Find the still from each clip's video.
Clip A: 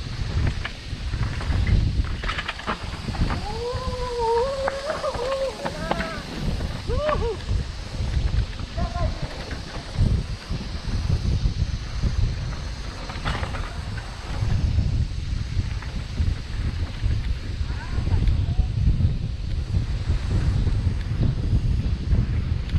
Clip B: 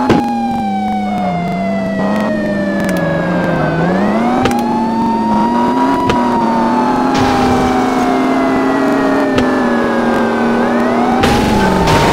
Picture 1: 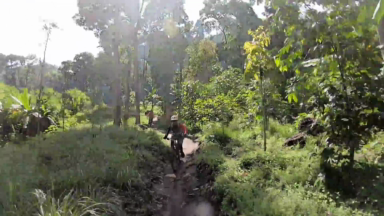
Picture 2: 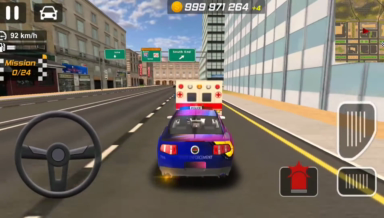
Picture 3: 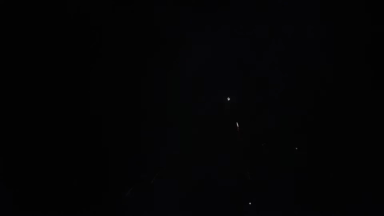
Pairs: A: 1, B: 2